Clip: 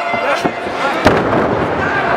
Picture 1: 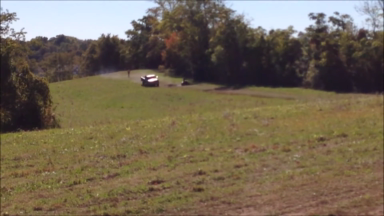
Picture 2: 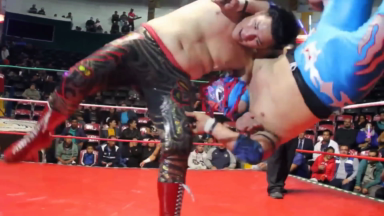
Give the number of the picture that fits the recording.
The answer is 2